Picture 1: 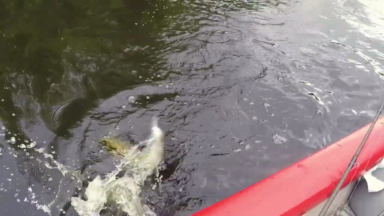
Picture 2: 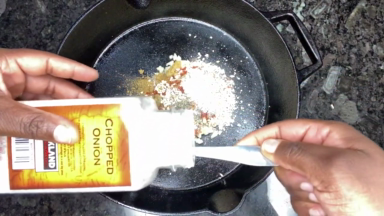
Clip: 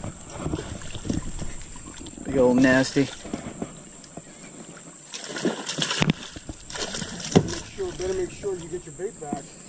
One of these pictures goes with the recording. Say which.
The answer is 1